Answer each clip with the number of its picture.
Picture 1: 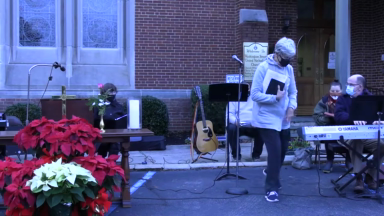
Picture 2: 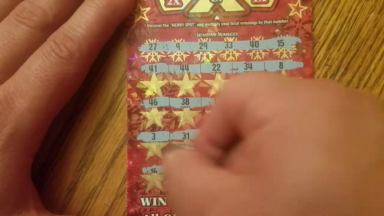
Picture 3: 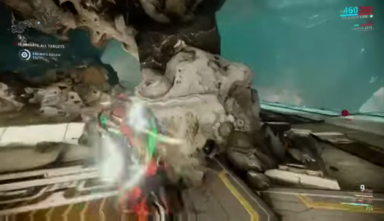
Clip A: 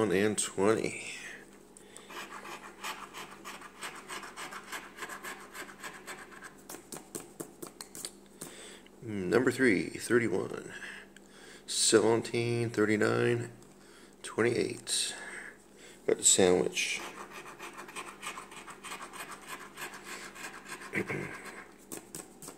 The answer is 2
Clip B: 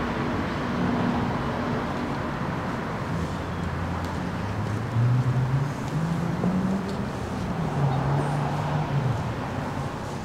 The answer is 1